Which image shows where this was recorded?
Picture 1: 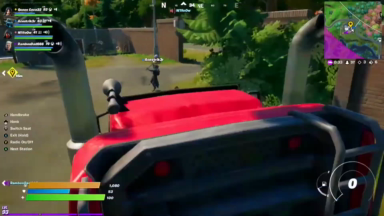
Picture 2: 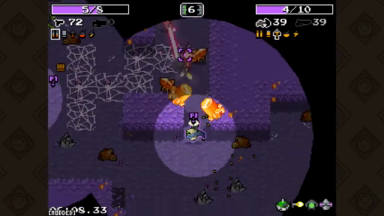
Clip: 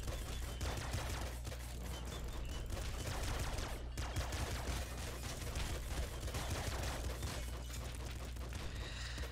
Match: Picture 2